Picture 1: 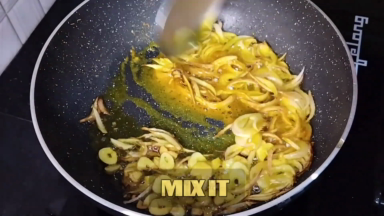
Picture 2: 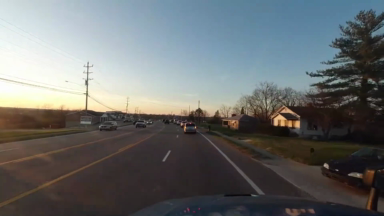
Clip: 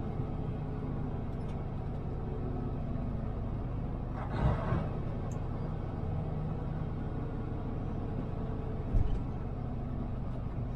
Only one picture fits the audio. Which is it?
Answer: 2